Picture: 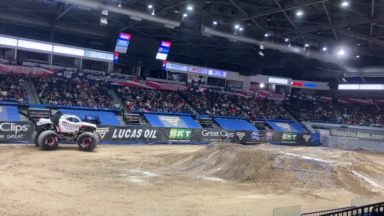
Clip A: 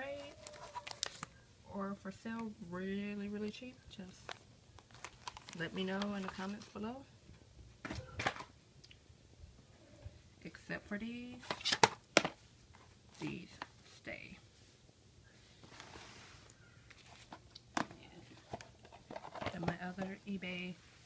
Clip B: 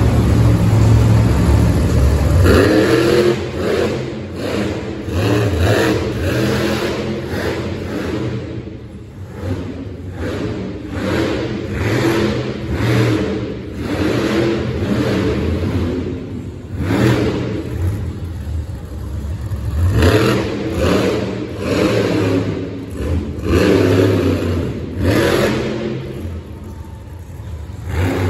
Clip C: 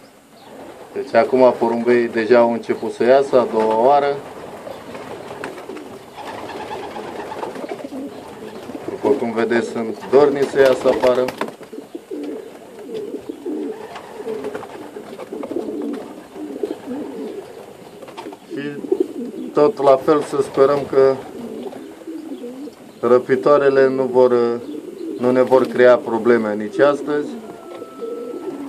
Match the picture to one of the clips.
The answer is B